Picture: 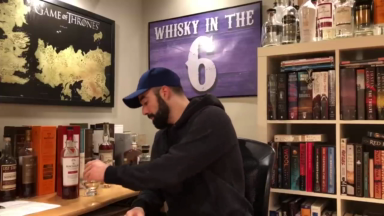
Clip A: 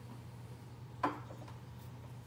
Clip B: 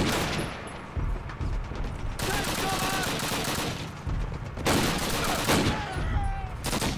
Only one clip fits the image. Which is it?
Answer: A